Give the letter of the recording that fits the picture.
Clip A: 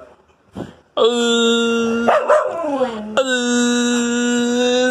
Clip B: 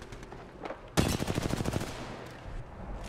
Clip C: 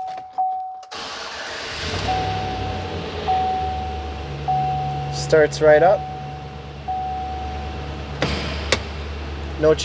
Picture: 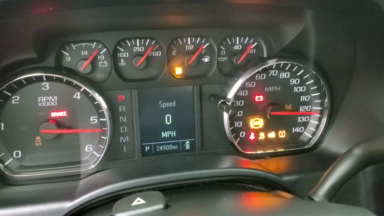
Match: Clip C